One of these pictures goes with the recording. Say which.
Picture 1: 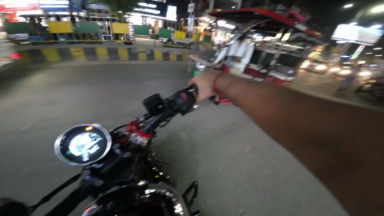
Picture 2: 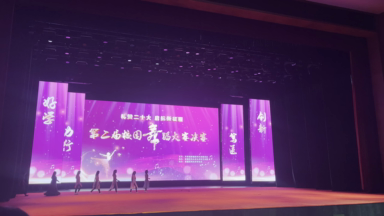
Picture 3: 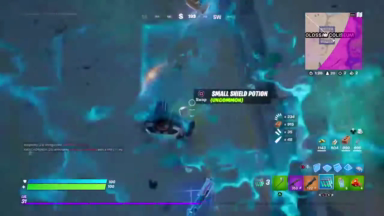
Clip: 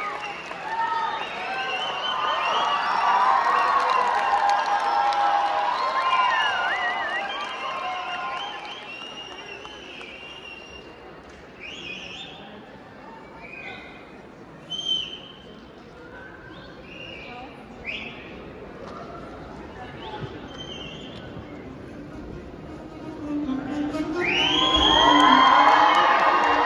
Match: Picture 2